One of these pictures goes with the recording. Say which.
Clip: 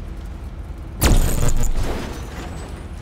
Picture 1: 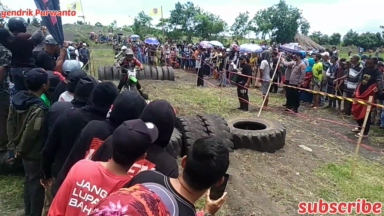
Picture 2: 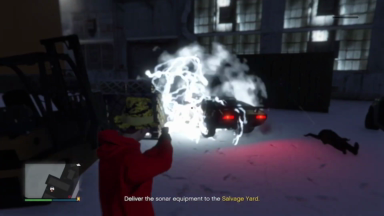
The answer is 2